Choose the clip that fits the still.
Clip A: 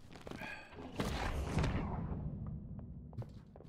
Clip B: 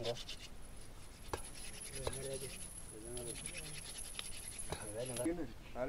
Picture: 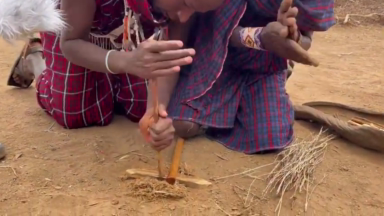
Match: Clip B